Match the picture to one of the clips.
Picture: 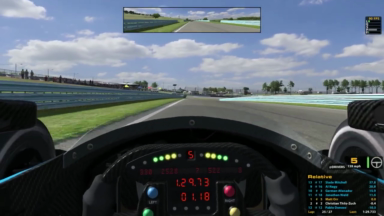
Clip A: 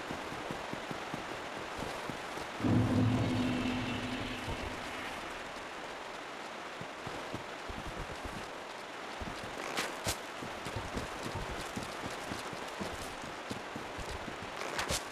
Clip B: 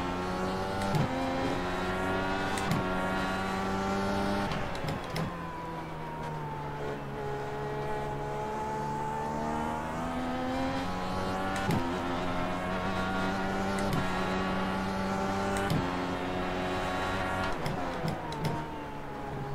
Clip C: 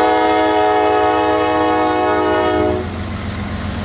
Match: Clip B